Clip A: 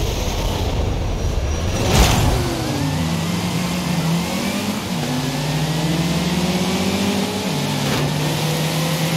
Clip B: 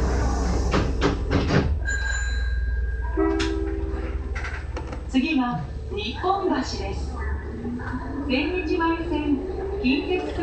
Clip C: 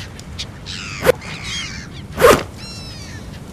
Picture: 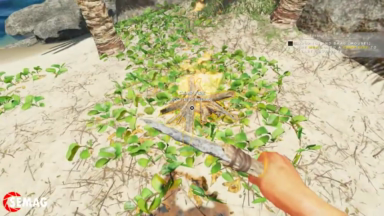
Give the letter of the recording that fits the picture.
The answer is C